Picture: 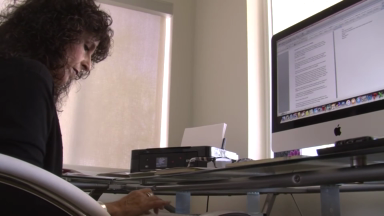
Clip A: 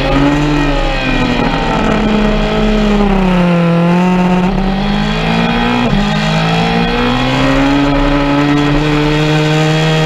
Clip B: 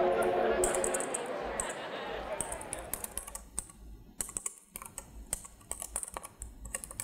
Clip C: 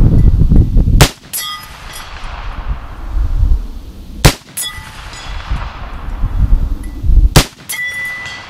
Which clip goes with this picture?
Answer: B